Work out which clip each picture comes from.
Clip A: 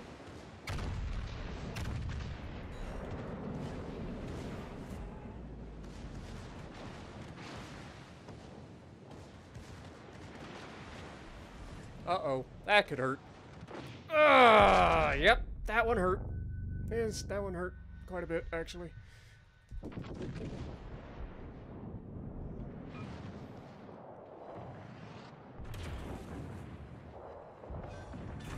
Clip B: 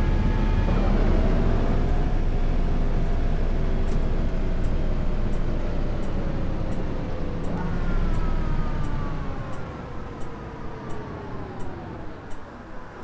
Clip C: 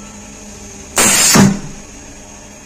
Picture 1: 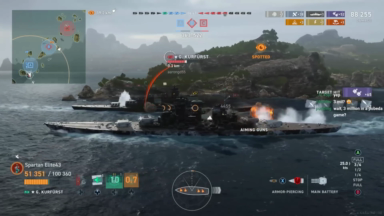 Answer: A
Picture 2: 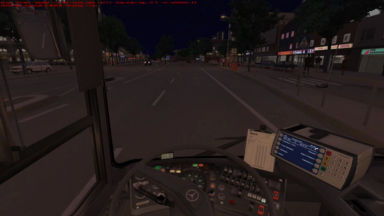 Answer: B